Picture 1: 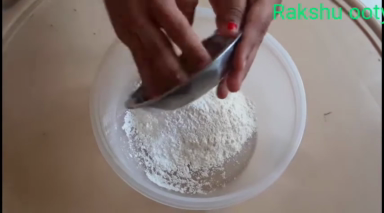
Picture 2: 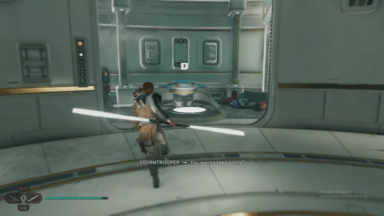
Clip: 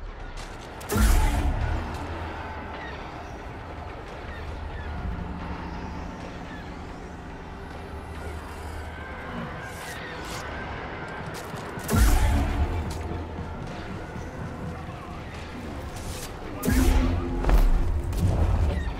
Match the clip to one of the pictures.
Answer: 2